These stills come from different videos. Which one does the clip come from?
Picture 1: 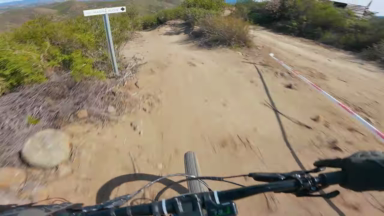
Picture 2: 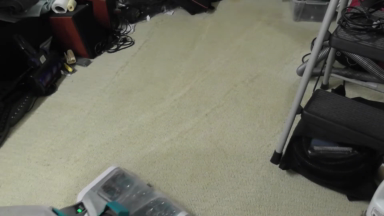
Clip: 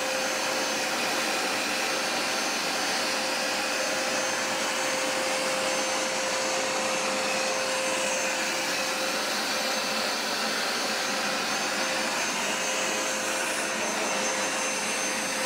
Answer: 2